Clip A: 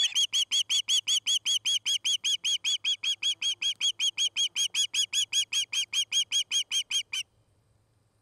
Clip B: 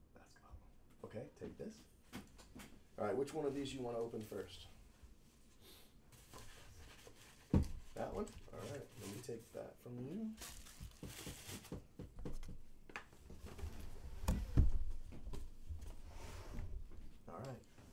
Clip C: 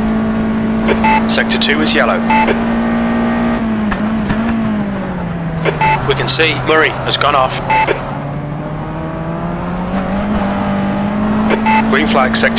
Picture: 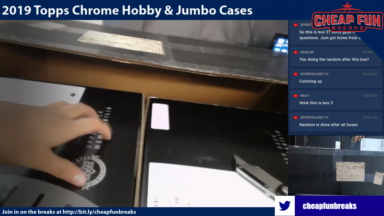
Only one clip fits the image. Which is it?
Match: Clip B